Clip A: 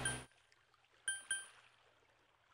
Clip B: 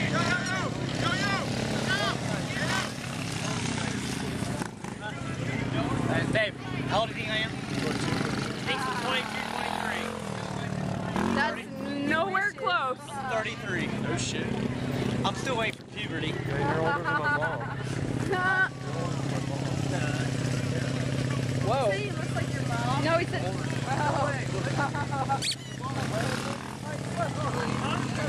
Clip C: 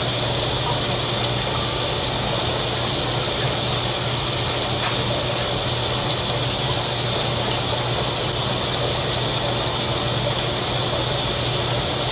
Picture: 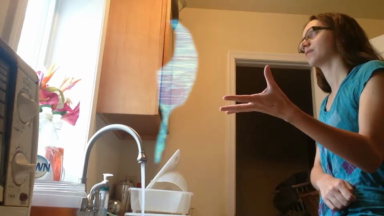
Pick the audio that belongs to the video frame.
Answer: C